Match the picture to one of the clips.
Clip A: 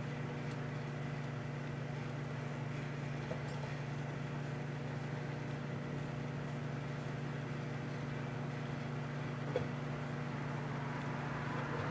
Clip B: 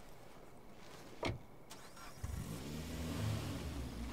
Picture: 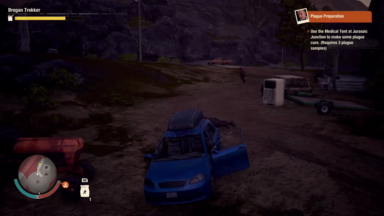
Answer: B